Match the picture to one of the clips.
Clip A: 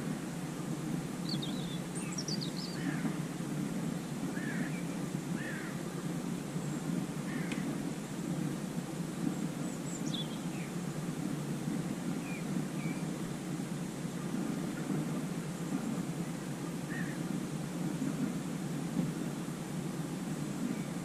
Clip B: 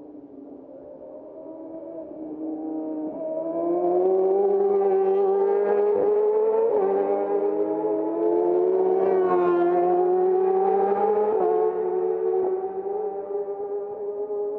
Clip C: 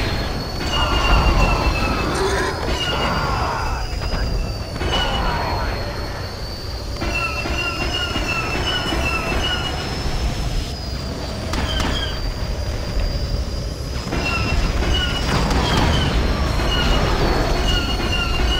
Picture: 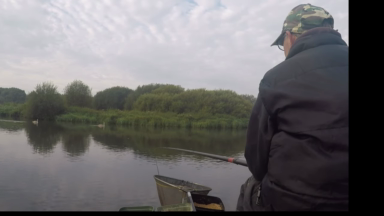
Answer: A